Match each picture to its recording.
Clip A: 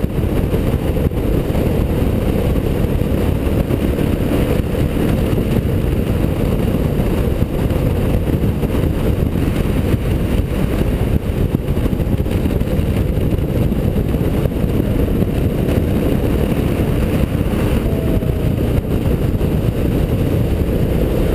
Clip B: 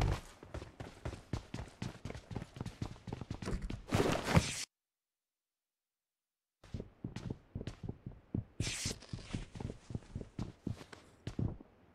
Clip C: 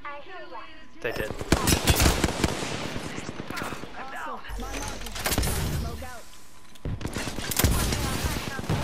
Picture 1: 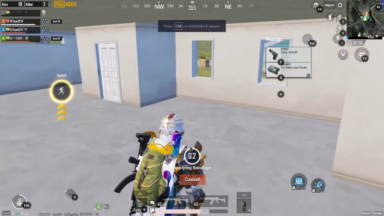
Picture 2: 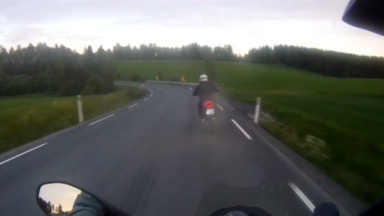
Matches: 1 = B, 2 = A